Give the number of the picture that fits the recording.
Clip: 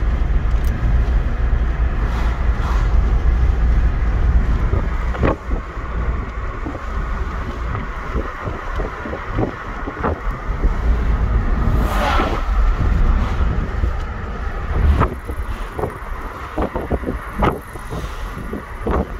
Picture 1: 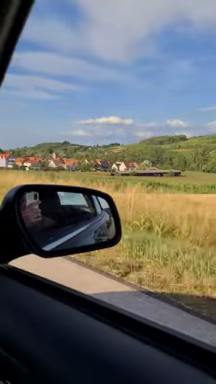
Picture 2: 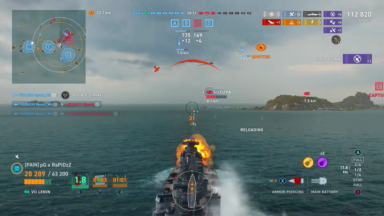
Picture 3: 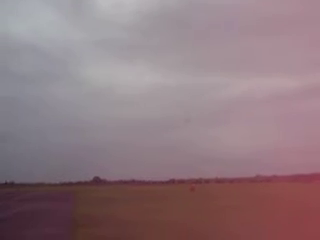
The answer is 1